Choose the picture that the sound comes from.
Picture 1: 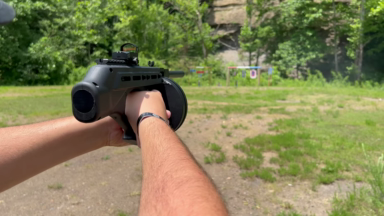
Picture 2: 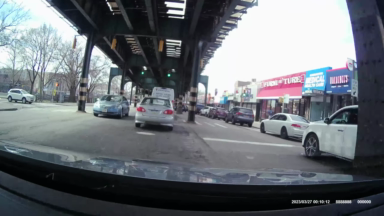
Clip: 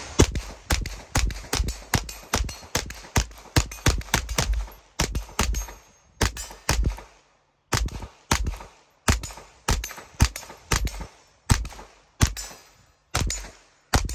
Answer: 1